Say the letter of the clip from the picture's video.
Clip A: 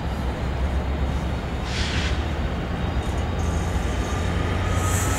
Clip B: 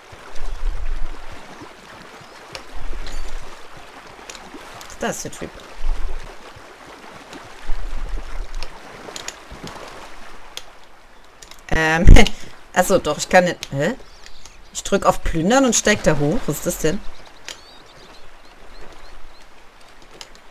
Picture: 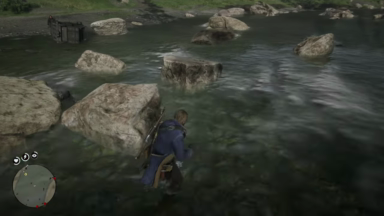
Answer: B